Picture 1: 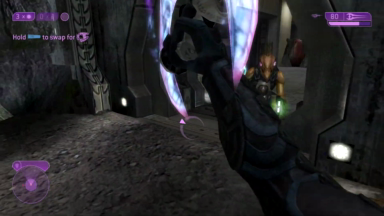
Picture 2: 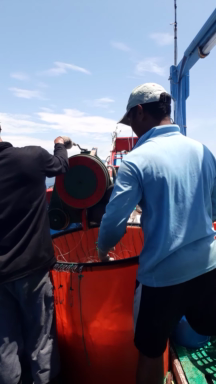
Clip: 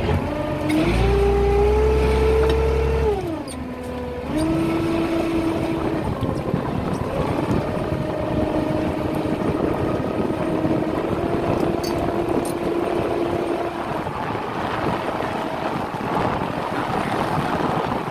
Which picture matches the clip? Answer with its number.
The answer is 2